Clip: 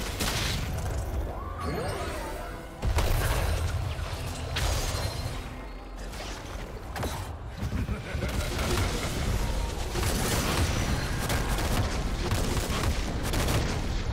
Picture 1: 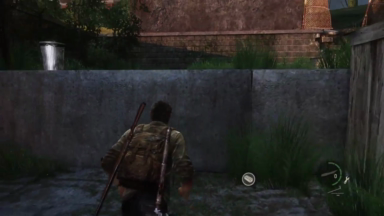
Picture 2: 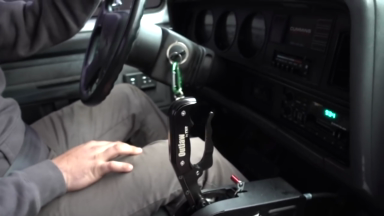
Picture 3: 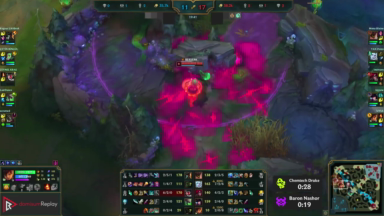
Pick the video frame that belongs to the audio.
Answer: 3